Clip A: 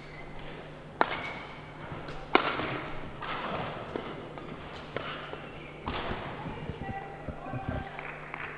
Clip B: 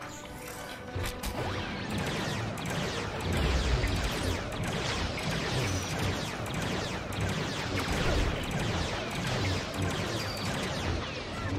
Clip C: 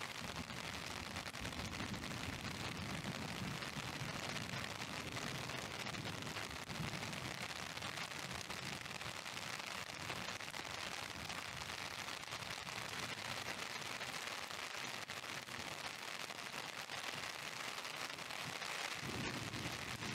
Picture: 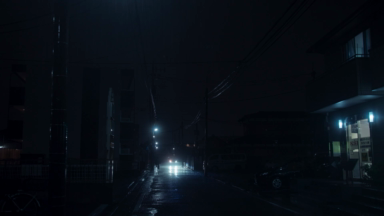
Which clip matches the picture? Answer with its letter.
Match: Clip C